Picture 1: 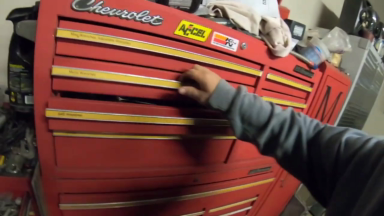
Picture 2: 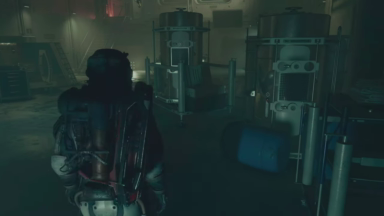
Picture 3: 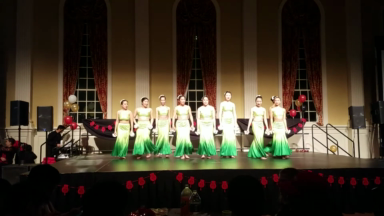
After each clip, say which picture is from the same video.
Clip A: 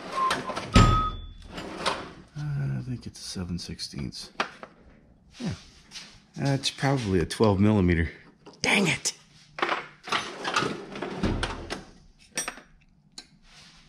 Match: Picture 1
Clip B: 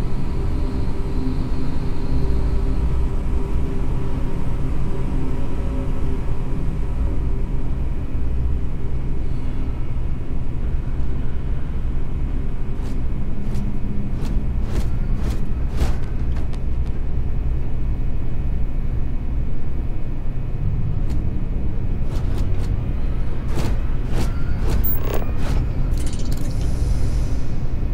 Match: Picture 2